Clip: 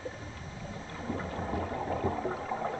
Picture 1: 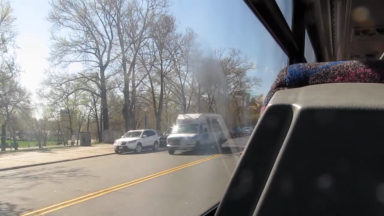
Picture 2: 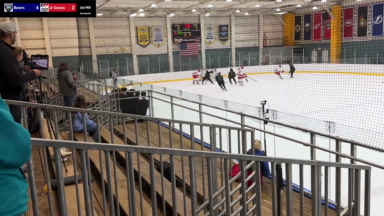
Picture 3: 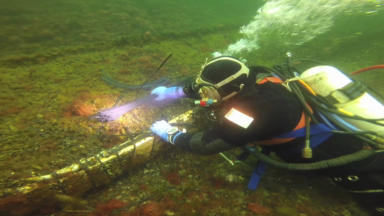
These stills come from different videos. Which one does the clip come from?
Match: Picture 3